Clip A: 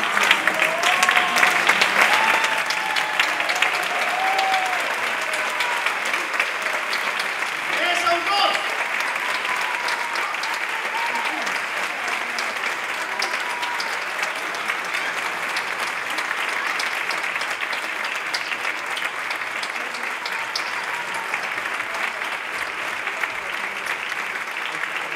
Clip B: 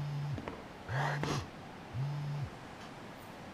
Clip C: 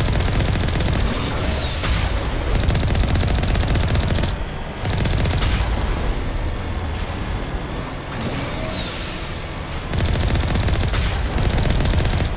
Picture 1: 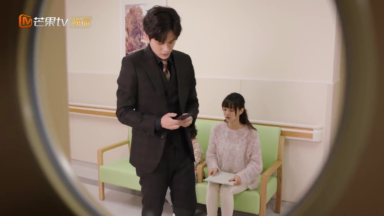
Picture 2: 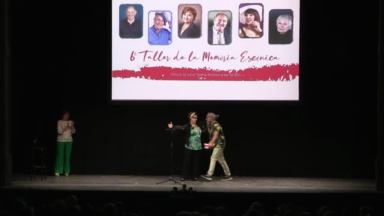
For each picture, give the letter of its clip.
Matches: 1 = B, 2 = A